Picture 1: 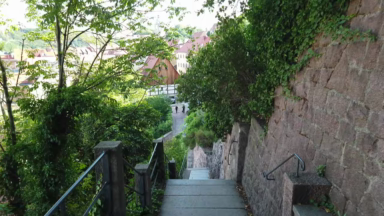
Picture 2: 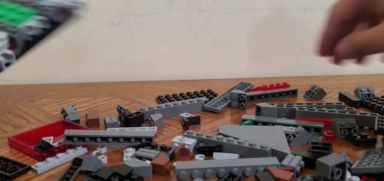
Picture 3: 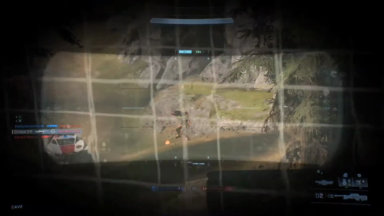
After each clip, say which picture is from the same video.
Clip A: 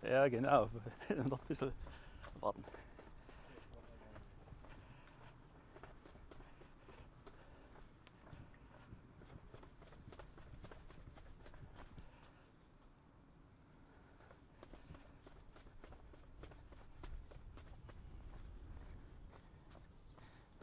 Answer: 1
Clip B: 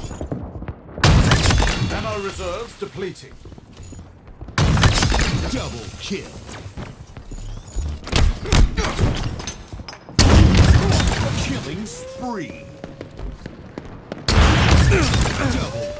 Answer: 3